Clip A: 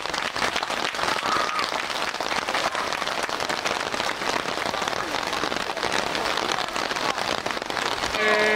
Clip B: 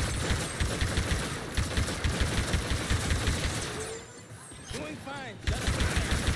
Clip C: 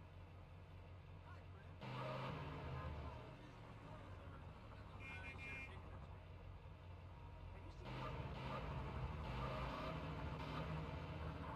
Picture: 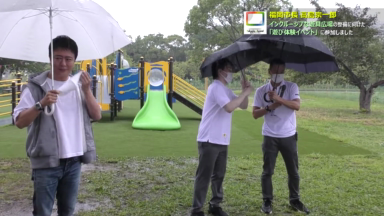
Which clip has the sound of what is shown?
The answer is A